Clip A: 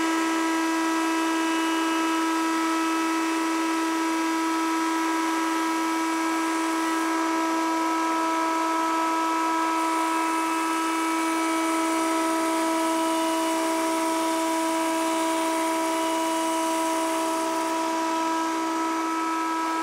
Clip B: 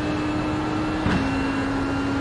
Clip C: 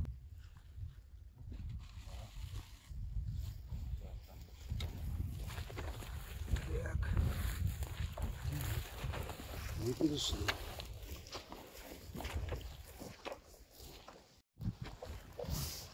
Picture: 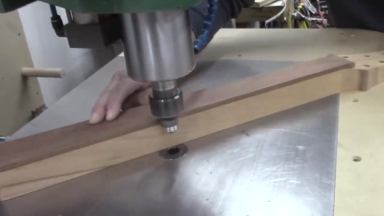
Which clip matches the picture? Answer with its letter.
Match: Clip A